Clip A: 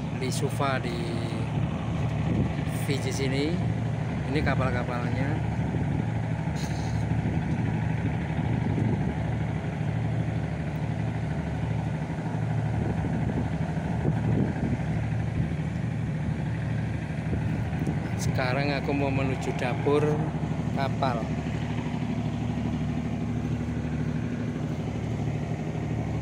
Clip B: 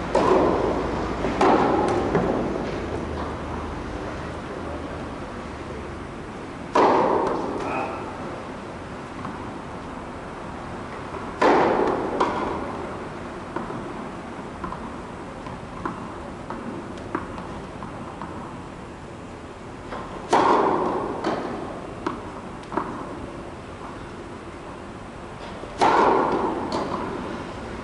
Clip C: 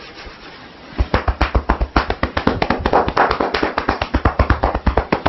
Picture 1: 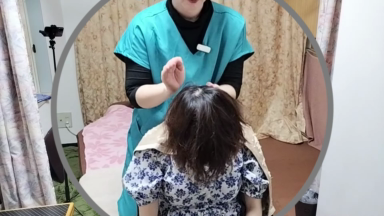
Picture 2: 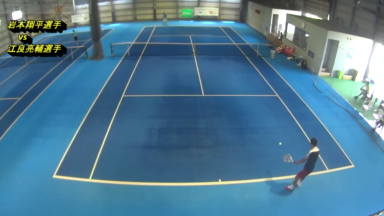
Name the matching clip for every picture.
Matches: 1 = C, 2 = B